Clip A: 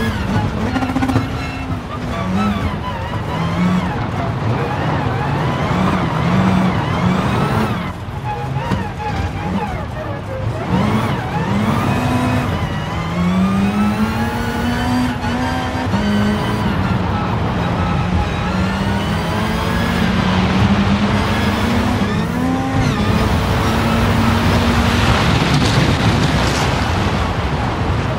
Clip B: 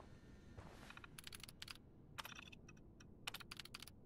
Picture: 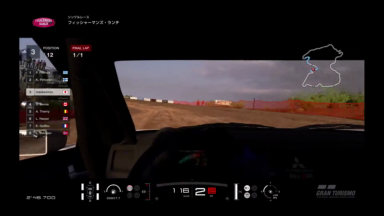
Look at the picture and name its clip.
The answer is A